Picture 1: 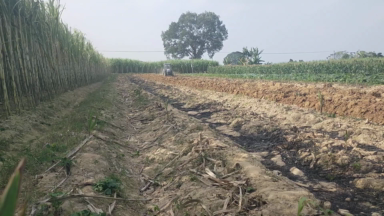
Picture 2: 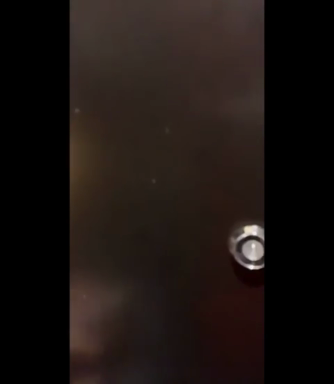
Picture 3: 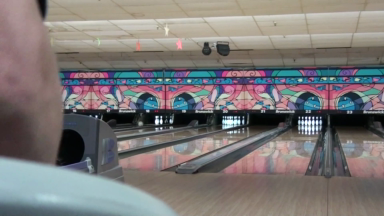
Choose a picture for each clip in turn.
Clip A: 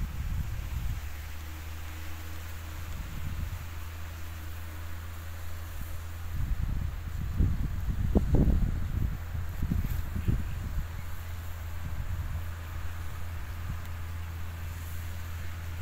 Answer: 1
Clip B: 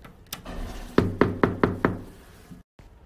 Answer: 2